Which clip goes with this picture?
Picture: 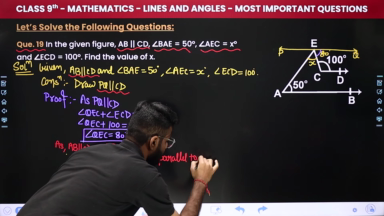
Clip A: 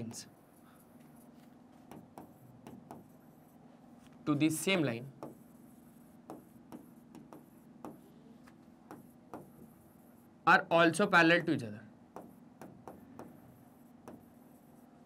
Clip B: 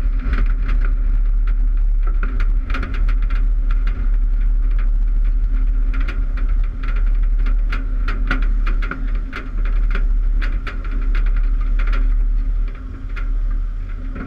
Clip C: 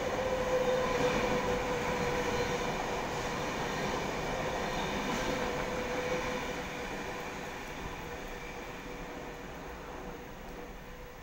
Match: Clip A